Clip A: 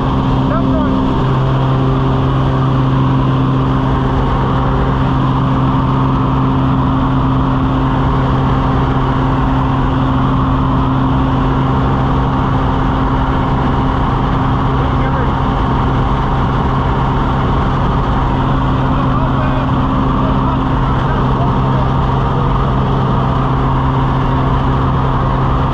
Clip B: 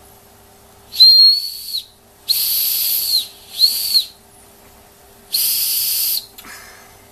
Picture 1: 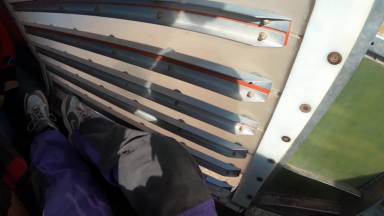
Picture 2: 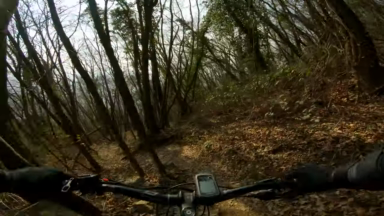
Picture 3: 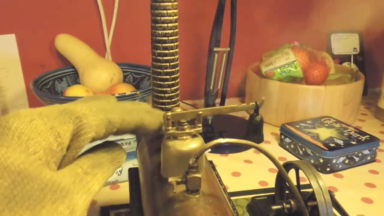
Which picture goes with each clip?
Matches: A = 1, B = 3